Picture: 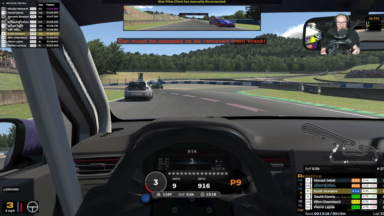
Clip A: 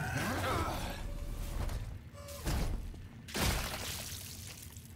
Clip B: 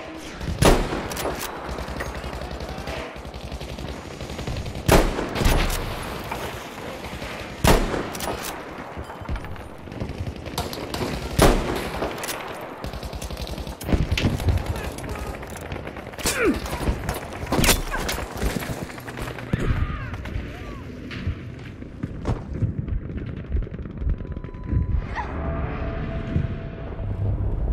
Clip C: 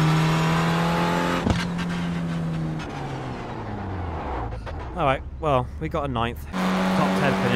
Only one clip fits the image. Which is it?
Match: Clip C